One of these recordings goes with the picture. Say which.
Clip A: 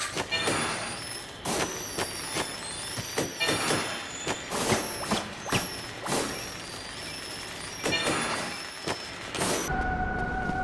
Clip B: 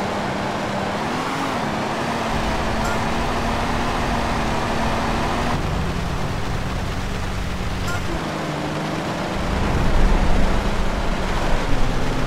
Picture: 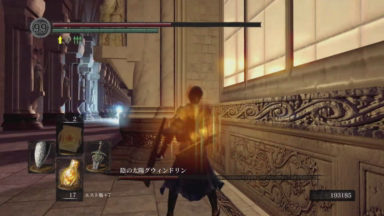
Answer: A